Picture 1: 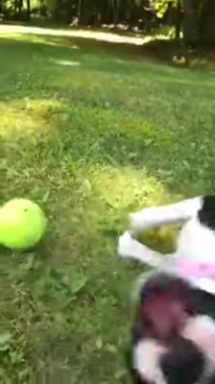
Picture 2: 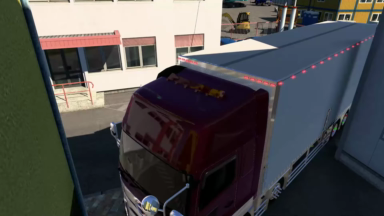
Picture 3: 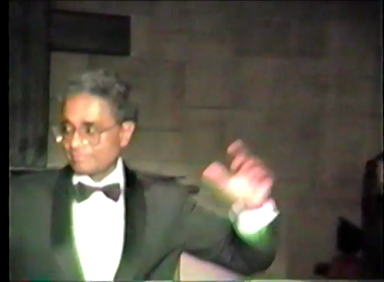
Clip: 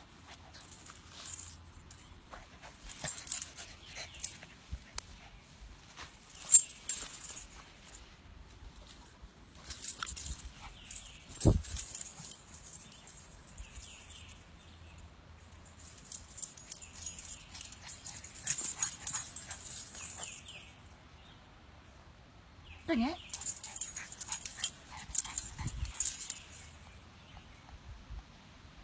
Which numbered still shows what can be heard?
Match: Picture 1